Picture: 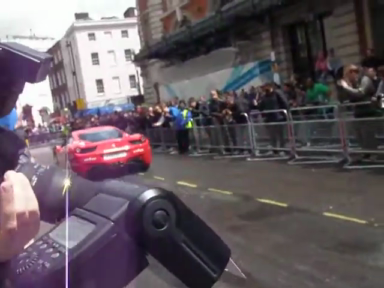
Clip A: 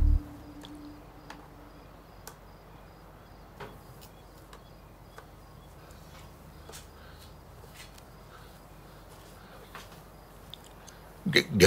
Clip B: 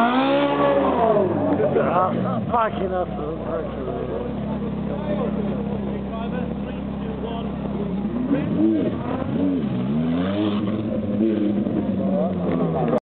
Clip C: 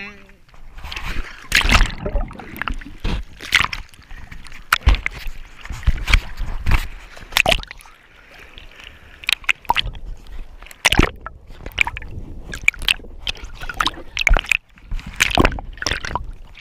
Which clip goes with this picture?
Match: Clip B